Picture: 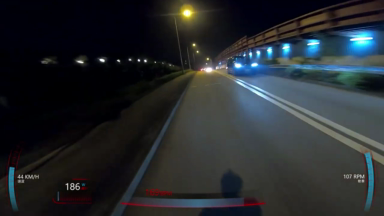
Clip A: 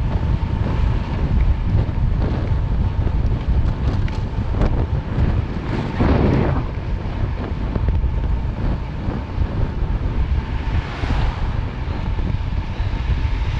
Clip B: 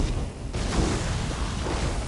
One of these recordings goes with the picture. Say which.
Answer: A